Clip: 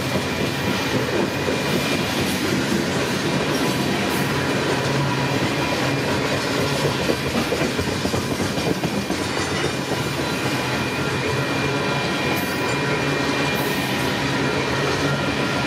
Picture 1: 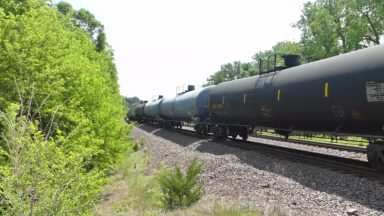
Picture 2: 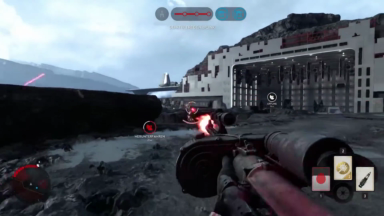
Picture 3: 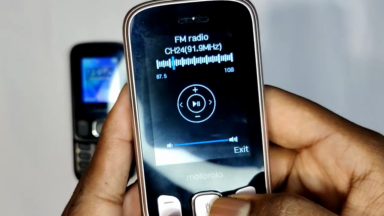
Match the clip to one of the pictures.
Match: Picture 1